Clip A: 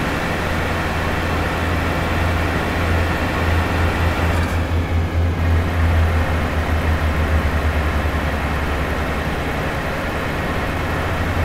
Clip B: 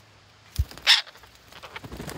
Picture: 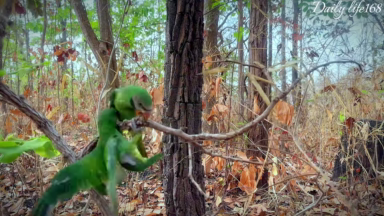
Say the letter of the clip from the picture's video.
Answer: B